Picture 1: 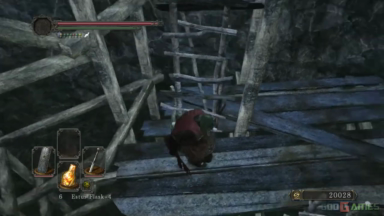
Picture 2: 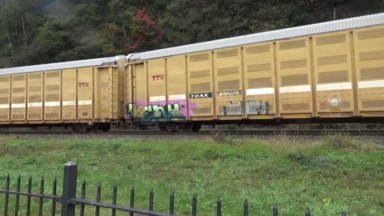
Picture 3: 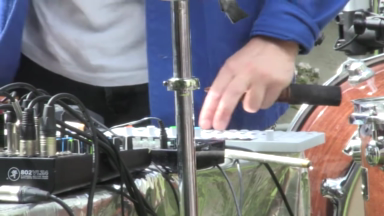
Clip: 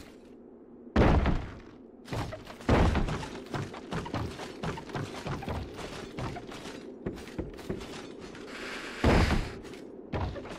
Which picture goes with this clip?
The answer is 1